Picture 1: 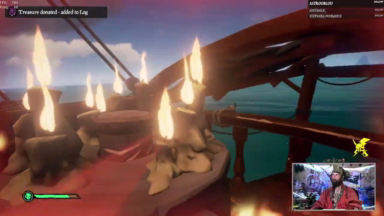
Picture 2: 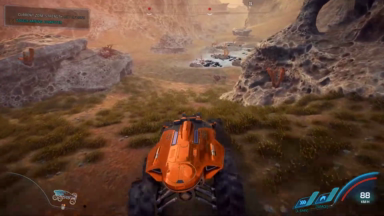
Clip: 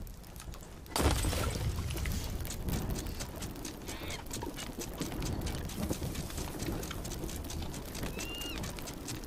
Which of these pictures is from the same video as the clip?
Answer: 1